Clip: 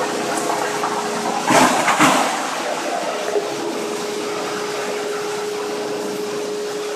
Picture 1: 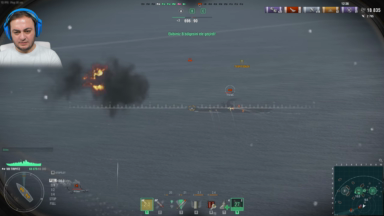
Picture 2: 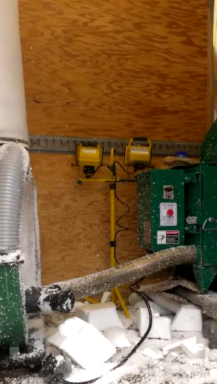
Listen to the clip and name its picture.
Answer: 2